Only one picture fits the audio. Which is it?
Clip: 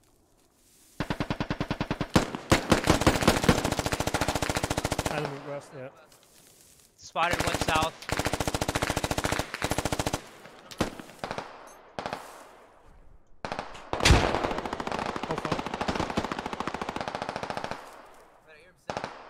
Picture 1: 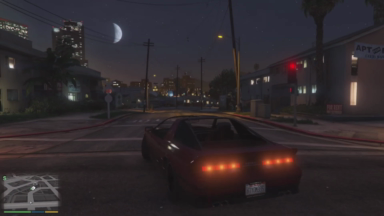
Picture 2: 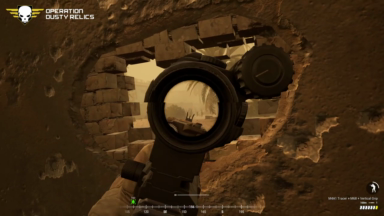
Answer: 2